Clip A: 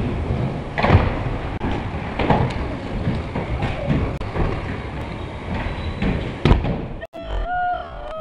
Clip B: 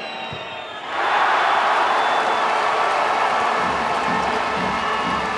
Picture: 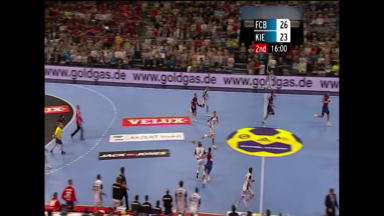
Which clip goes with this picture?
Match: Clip B